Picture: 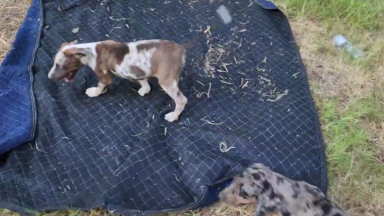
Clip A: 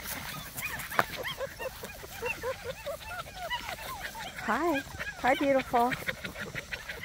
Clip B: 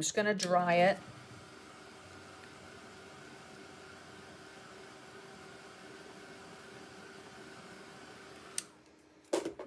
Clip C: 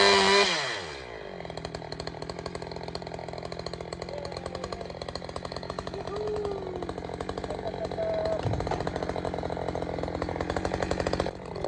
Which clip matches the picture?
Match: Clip A